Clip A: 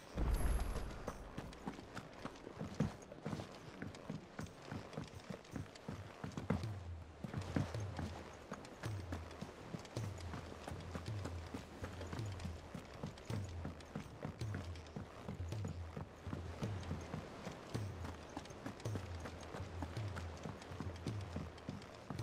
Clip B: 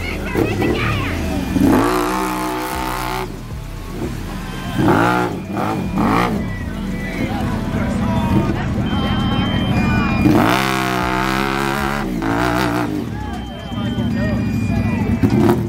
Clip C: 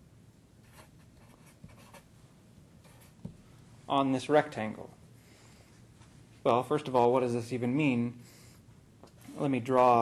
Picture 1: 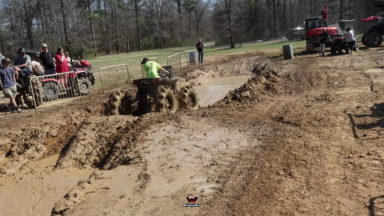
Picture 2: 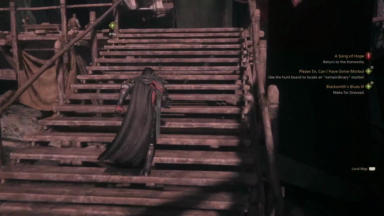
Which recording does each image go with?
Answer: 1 B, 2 A